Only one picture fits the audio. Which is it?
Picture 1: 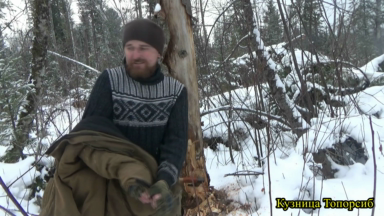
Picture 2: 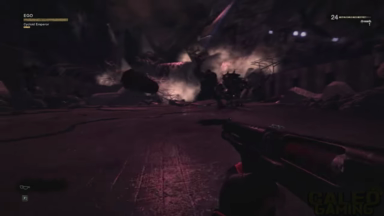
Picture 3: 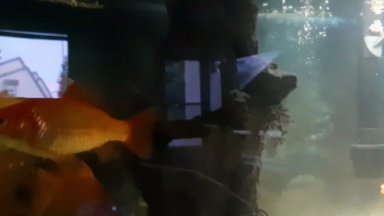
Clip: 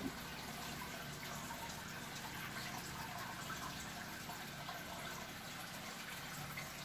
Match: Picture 3